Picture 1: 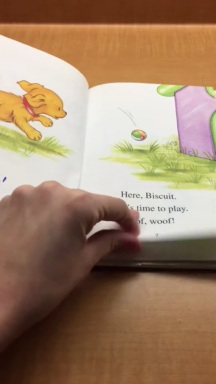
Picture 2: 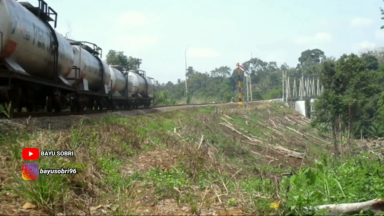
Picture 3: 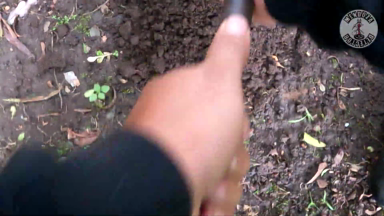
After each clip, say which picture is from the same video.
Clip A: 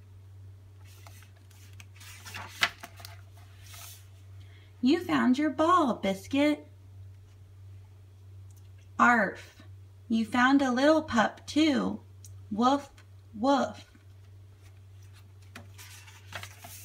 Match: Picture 1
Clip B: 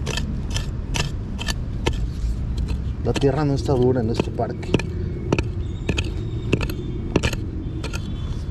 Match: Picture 3